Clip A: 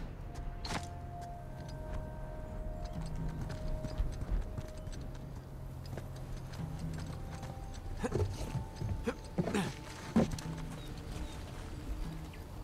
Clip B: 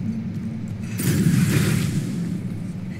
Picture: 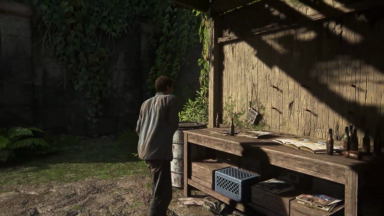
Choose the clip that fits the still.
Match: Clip A